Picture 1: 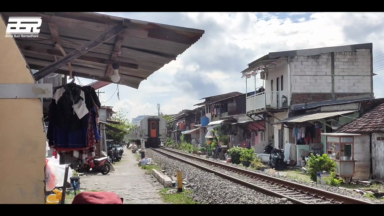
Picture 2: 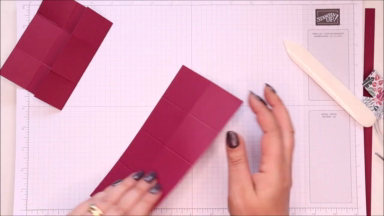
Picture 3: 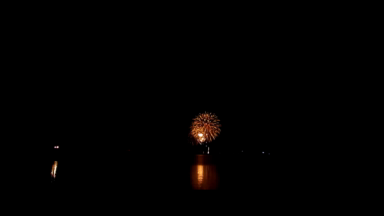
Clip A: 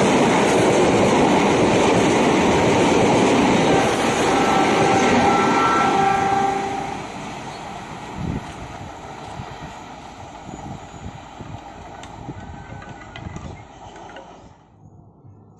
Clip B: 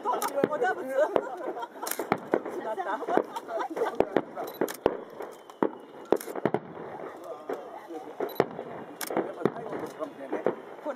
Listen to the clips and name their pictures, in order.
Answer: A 1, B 3